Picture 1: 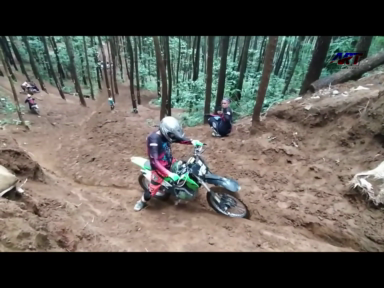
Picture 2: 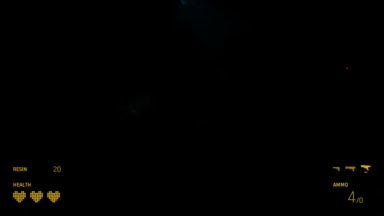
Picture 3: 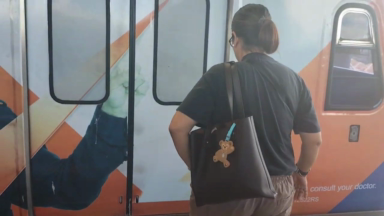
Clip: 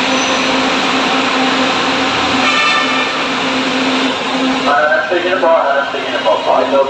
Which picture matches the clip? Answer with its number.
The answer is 3